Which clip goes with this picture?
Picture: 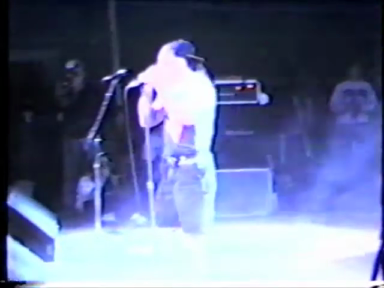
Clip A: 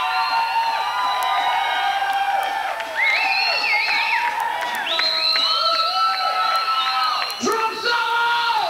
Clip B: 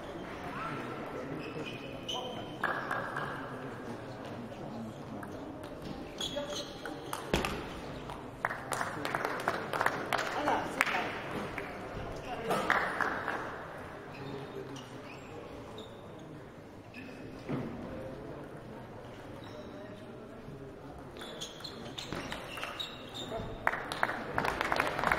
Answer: A